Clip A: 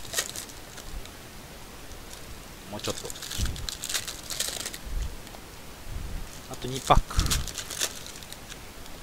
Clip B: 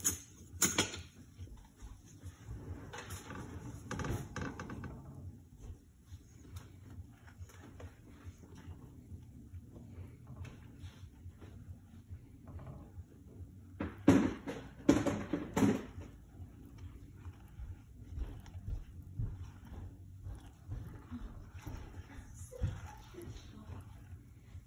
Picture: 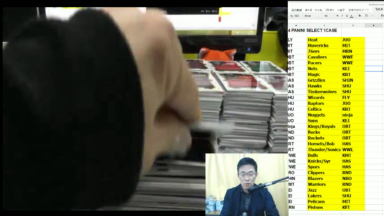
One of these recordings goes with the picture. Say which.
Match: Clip A